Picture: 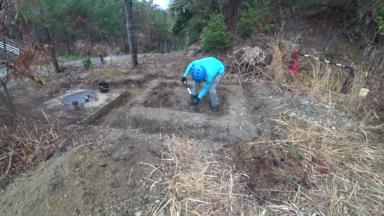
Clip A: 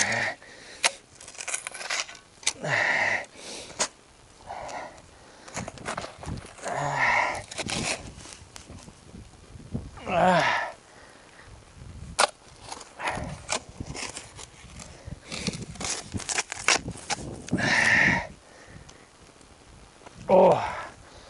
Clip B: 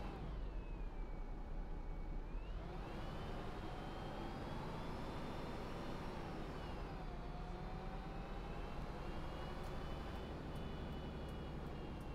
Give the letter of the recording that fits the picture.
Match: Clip A